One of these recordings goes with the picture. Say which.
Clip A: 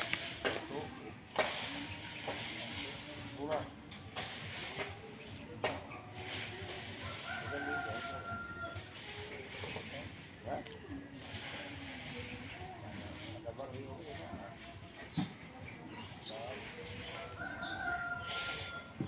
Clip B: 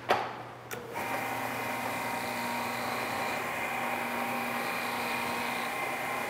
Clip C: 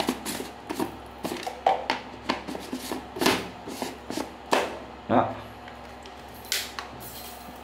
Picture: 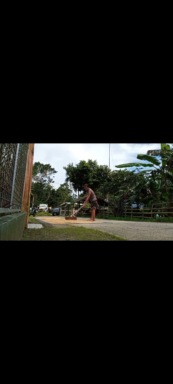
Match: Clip A